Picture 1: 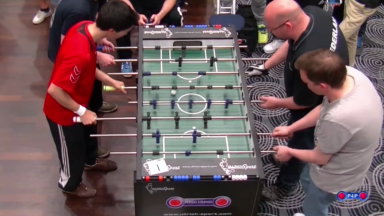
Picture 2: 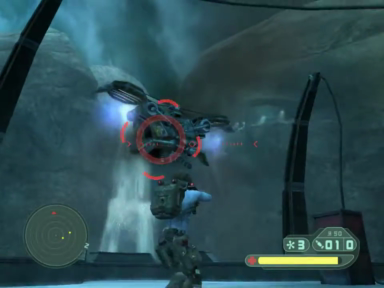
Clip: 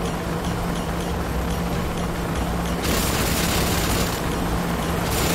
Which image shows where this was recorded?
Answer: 2